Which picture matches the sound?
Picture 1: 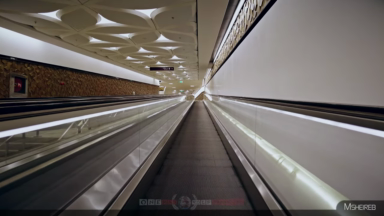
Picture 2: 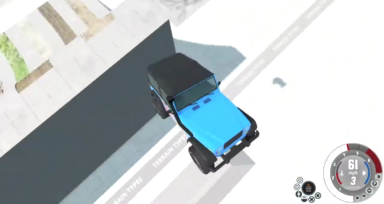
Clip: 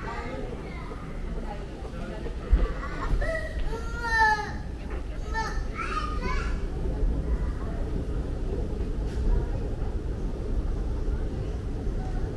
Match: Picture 1